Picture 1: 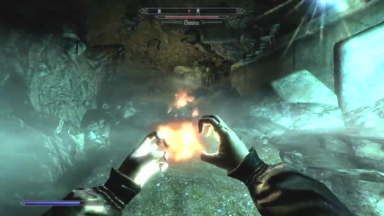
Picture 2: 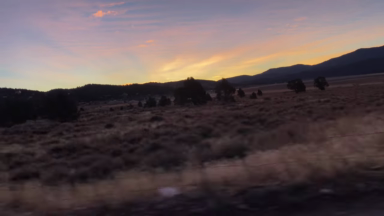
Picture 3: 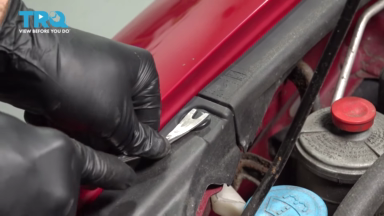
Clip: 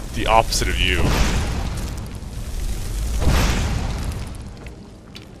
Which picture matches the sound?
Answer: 1